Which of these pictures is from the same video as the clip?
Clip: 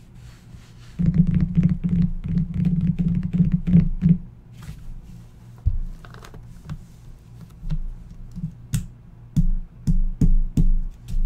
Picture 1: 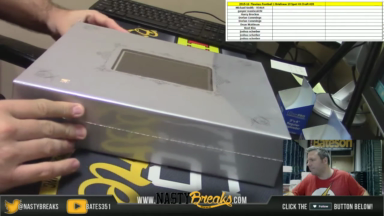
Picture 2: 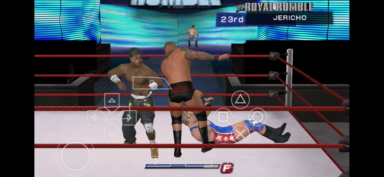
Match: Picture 1